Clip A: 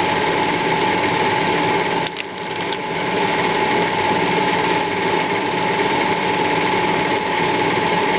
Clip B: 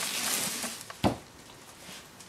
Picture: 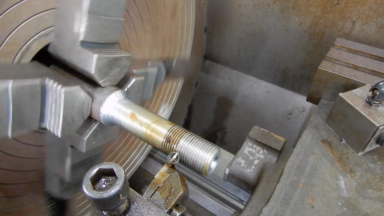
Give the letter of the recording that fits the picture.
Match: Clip A